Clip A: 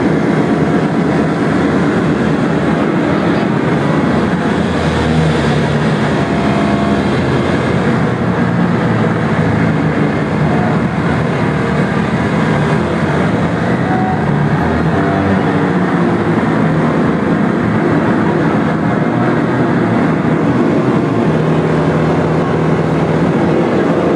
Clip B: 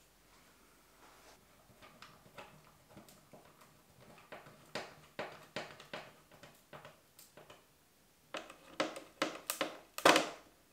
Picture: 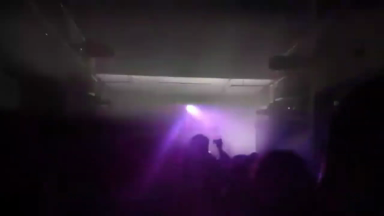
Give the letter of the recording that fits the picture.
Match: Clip A